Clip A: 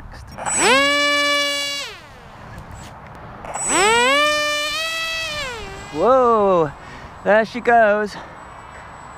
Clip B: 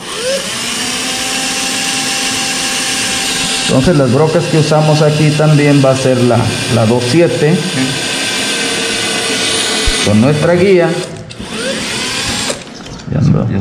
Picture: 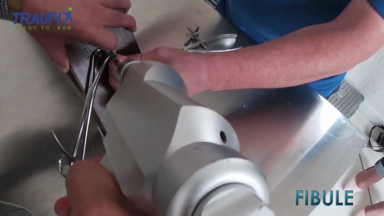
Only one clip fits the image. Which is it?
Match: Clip B